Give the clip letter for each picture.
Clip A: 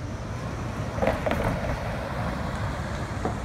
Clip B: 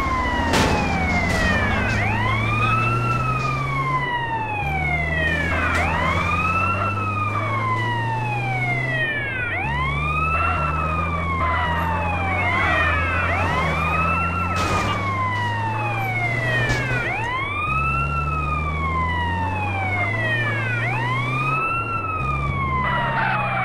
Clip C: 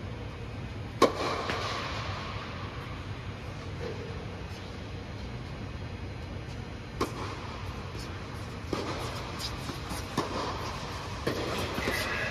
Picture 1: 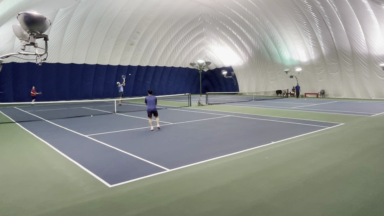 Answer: C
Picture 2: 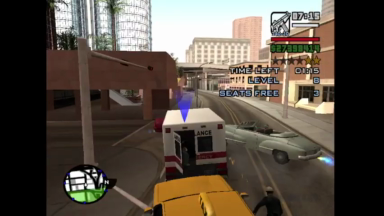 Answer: B